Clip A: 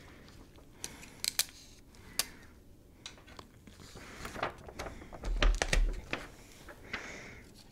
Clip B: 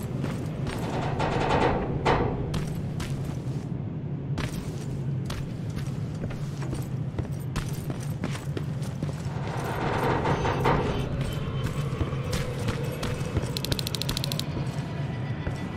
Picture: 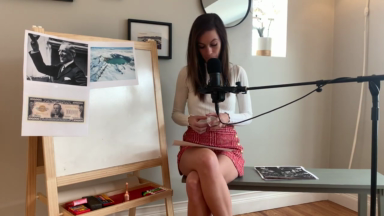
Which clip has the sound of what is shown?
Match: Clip A